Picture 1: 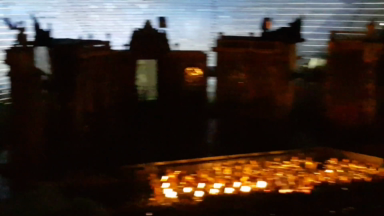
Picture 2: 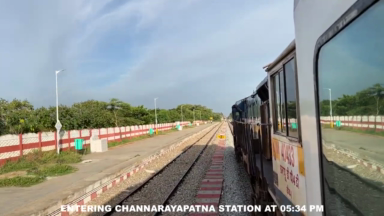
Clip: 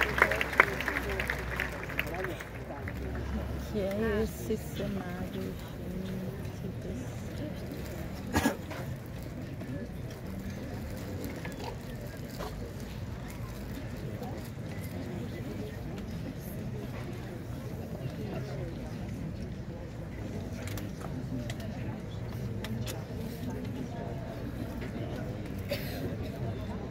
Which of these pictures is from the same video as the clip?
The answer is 1